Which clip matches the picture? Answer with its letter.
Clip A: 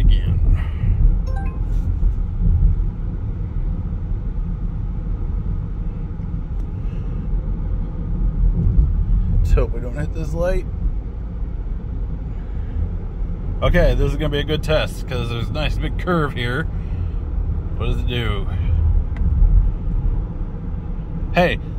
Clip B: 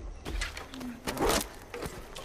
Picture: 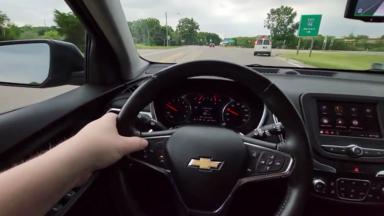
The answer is A